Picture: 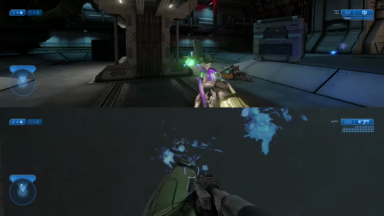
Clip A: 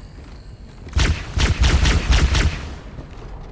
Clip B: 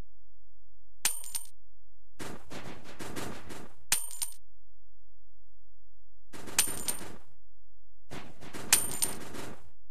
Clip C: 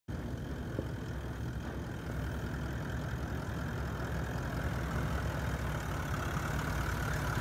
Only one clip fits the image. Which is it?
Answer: A